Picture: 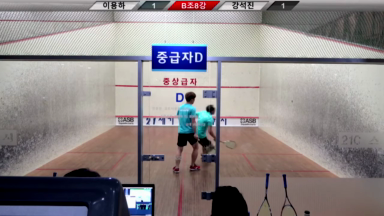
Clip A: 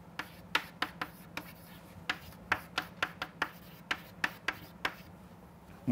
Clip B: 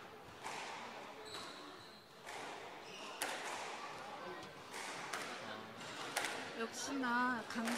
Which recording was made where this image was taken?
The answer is B